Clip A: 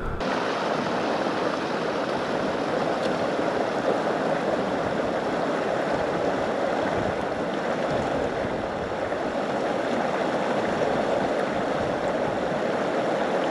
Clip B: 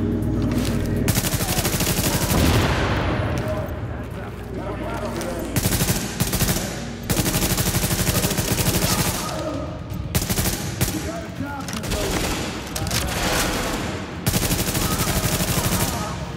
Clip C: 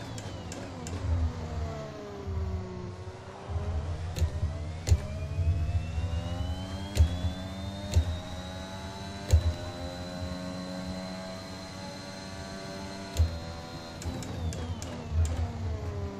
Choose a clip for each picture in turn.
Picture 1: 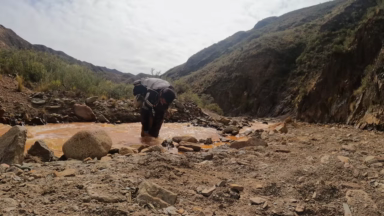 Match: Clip A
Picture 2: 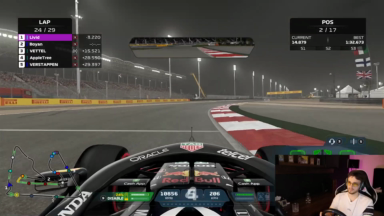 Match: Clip C